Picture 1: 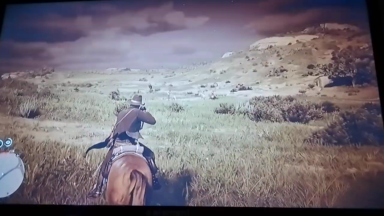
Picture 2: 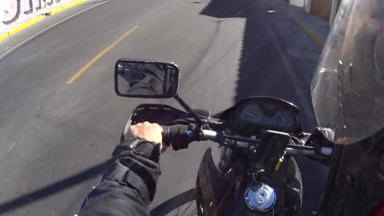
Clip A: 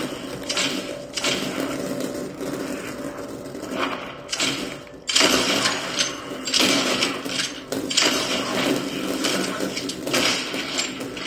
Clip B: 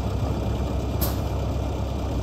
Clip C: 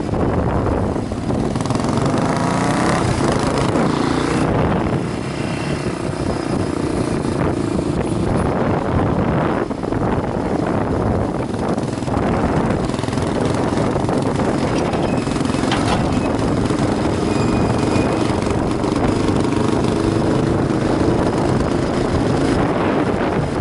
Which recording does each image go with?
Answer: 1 A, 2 C